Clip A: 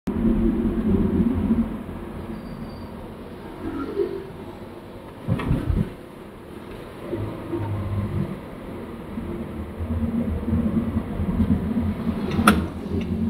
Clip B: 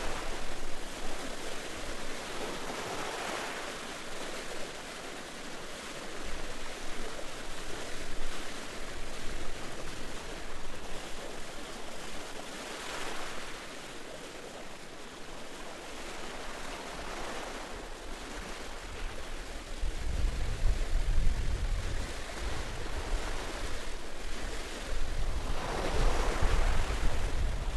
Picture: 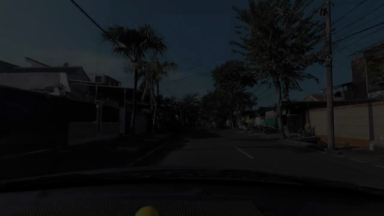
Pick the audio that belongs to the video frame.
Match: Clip A